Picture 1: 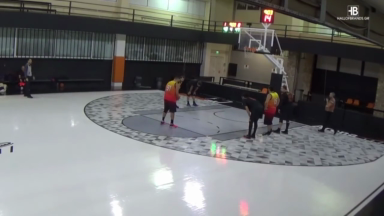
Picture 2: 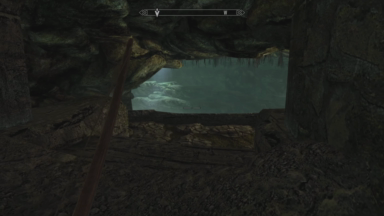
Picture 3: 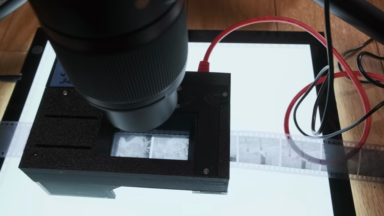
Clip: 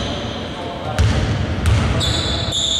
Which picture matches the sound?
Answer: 1